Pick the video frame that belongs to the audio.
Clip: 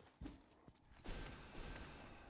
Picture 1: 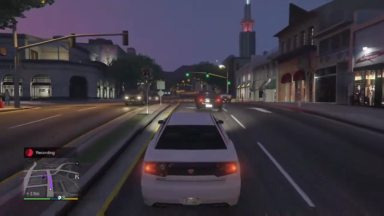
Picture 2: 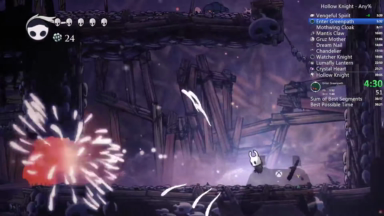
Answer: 2